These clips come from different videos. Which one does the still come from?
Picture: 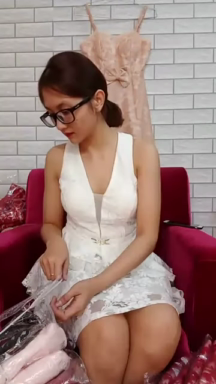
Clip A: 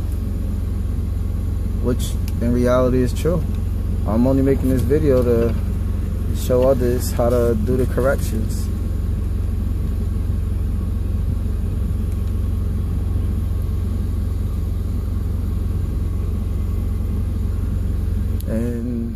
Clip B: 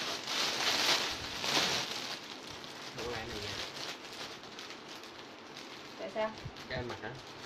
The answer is B